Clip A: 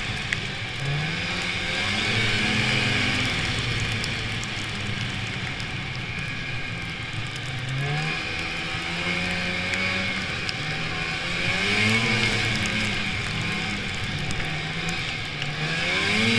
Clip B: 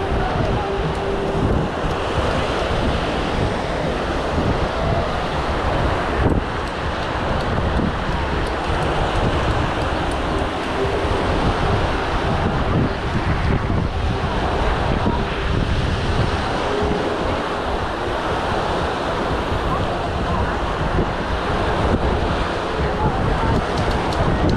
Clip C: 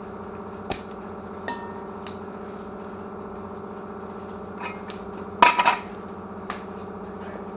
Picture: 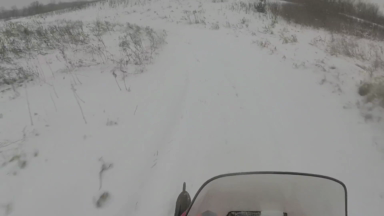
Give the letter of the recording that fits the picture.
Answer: A